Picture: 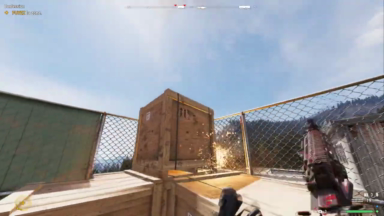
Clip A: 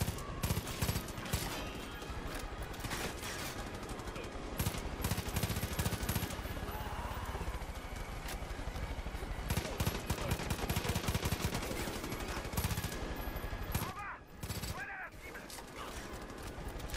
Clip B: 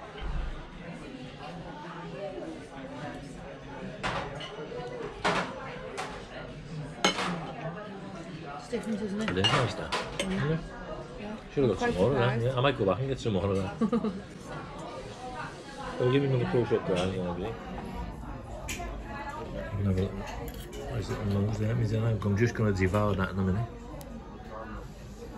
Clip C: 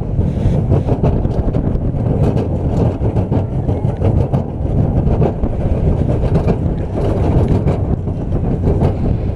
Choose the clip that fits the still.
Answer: A